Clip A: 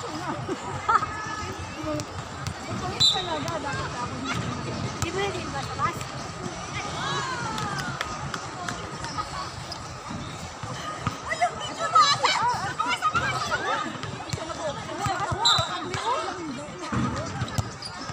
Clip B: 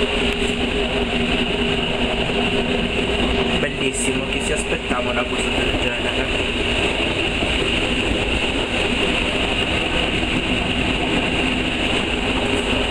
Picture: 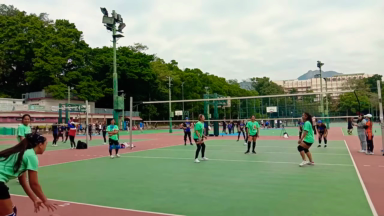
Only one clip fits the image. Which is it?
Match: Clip A